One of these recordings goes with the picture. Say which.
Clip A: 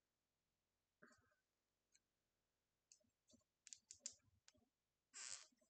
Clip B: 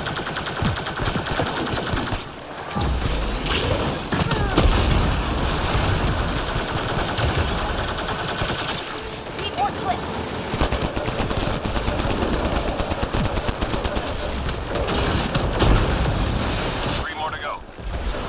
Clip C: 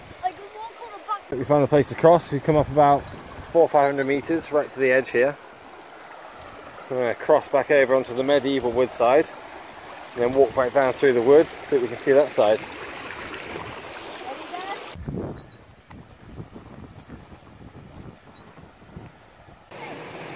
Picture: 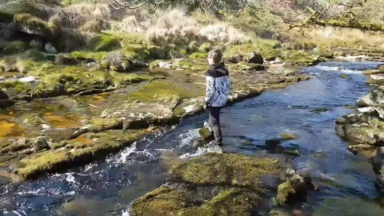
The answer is C